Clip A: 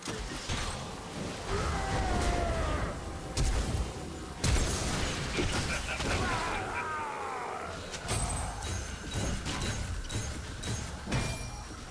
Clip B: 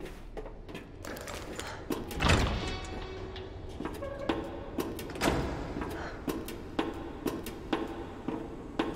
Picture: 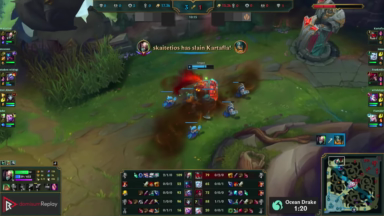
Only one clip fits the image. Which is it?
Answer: A